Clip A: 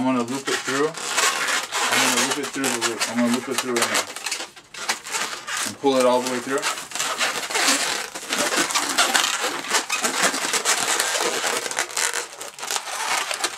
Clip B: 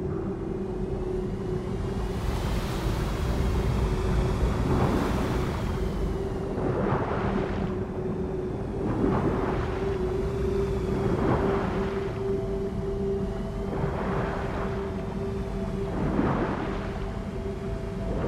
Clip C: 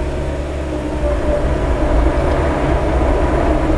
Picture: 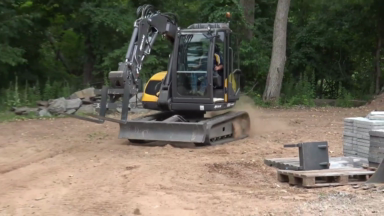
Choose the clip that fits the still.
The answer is C